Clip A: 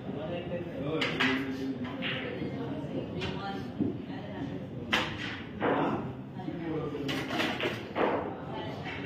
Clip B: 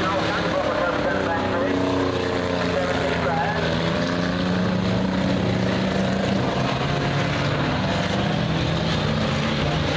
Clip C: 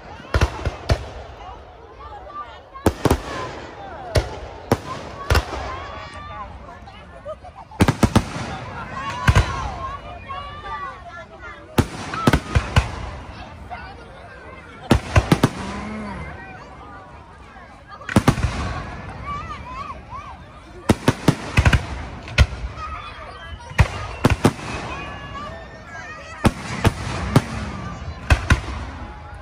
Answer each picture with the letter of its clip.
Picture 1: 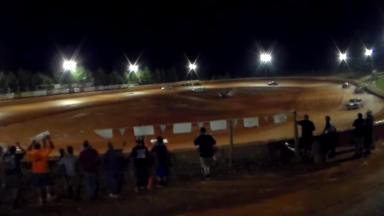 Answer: B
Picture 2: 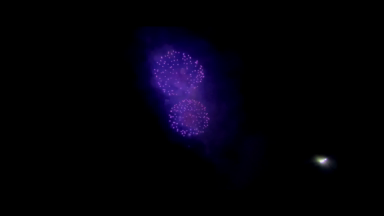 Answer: C